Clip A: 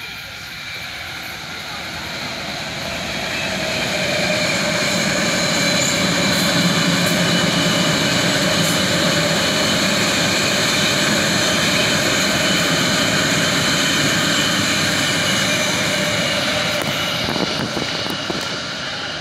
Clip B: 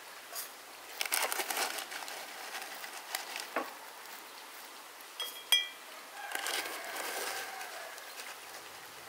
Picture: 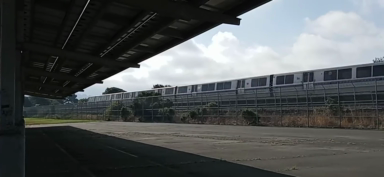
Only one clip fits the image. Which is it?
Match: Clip A